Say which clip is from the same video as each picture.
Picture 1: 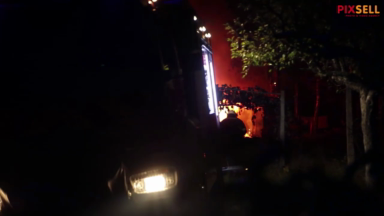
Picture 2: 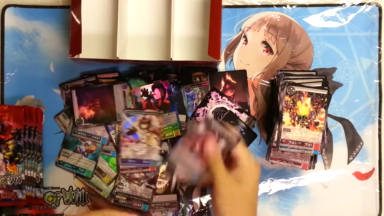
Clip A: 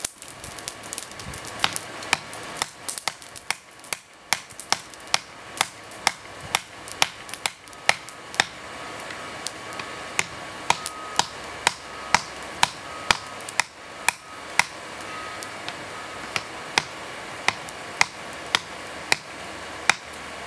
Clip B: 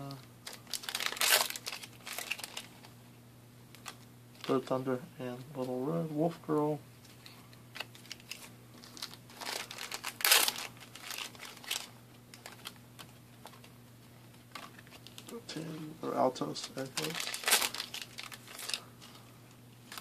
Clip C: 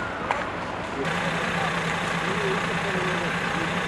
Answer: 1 C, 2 B